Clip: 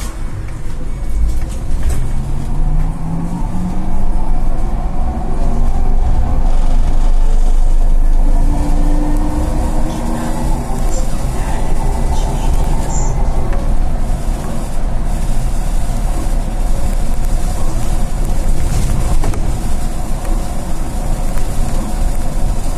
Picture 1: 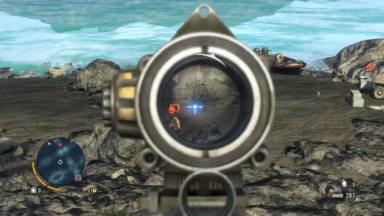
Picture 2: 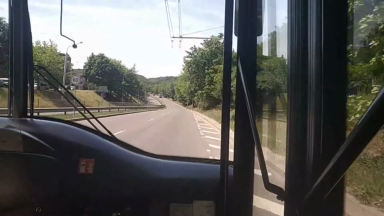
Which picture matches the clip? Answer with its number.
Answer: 2